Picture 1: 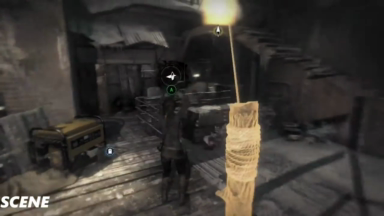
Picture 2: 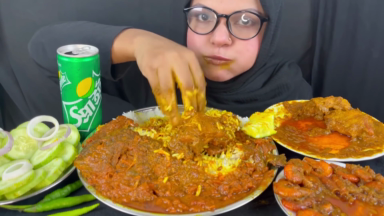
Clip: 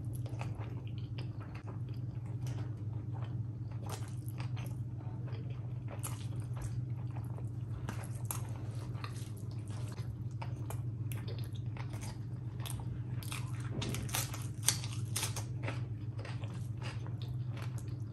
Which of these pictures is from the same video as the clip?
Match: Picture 2